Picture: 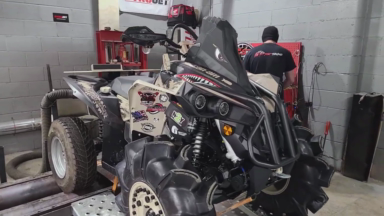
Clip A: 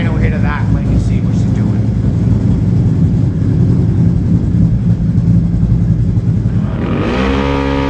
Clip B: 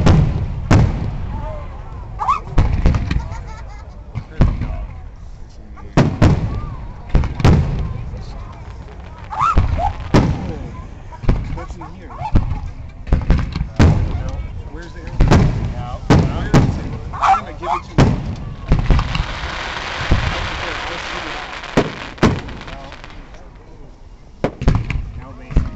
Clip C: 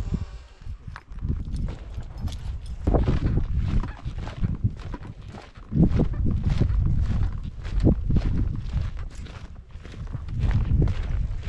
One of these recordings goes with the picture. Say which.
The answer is A